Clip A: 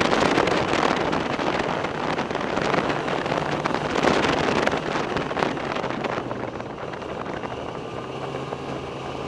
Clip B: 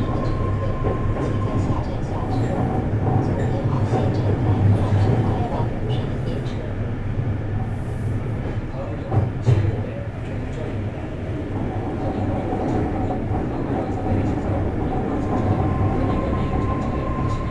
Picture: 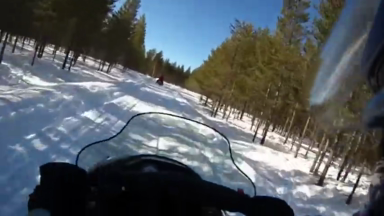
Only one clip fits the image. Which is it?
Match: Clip A